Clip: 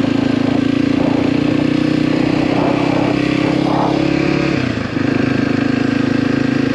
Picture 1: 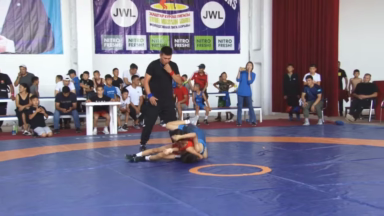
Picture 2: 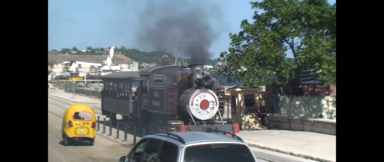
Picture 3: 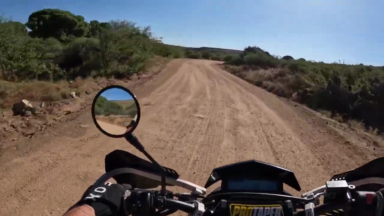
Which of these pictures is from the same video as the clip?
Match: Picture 3